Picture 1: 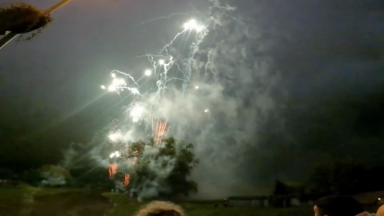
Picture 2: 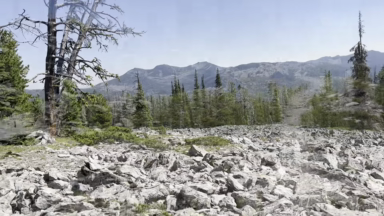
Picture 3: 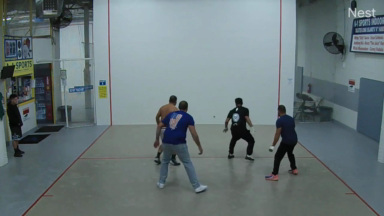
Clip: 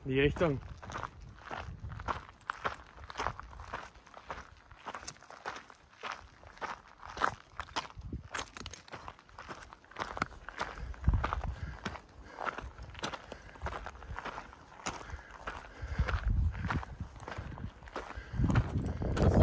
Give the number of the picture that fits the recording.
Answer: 2